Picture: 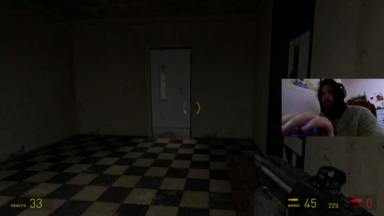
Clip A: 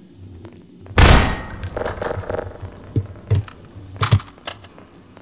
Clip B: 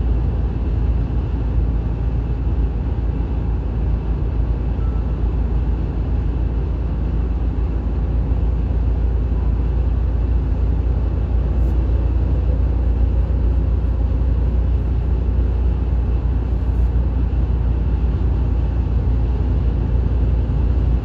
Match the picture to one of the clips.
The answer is A